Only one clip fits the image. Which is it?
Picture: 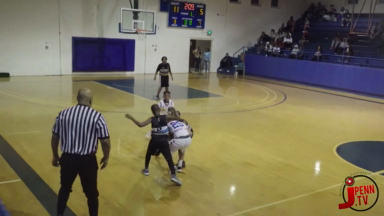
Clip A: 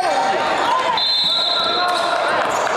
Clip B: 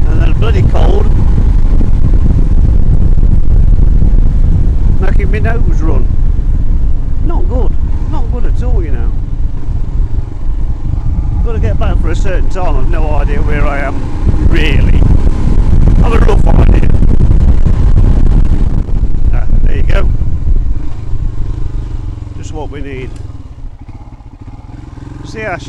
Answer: A